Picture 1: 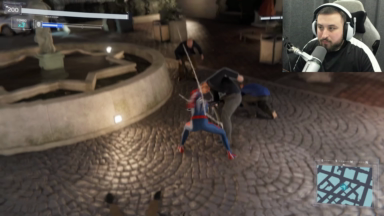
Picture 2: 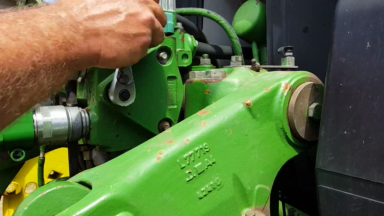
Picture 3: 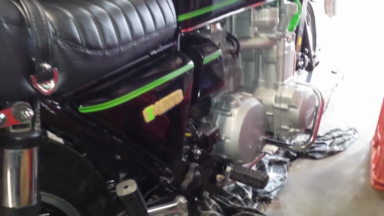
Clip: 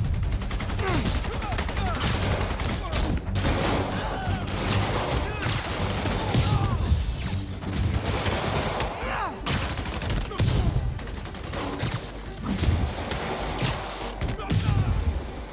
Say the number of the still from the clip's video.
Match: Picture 1